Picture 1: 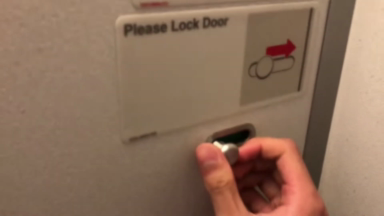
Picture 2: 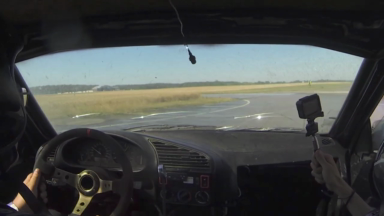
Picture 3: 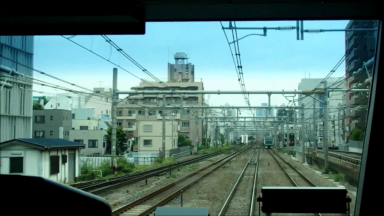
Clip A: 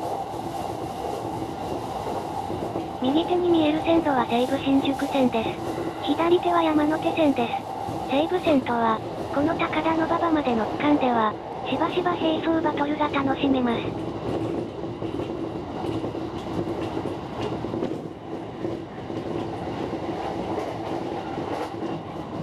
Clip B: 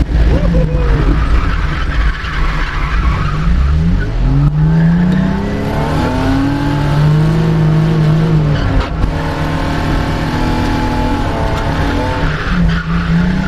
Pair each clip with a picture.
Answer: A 3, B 2